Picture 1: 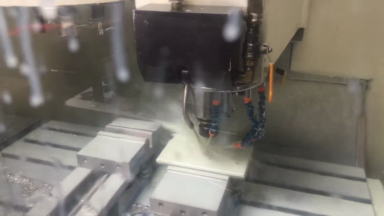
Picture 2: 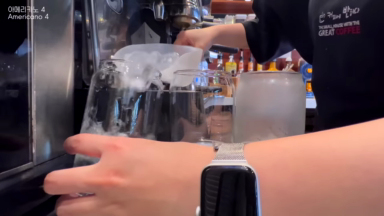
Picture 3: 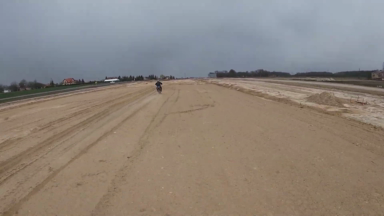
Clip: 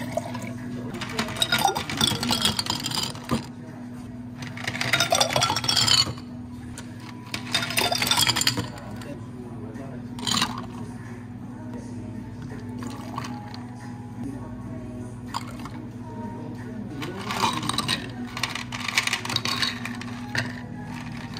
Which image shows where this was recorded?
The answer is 2